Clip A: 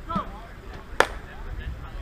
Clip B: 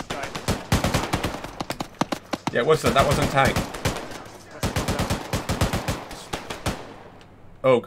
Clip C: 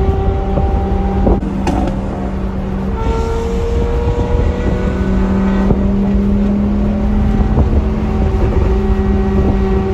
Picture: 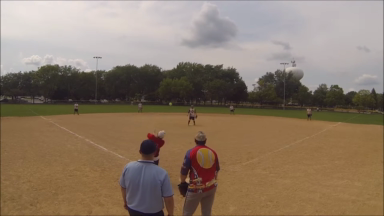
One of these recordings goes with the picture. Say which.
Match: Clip A